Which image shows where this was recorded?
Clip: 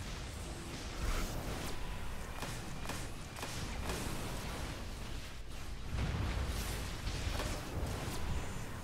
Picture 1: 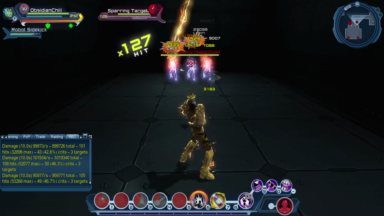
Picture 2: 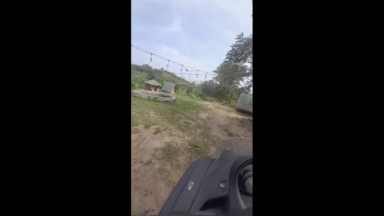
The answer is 1